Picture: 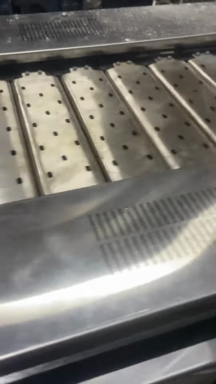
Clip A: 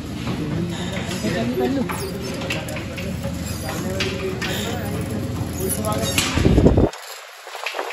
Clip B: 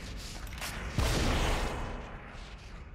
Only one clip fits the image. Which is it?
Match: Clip A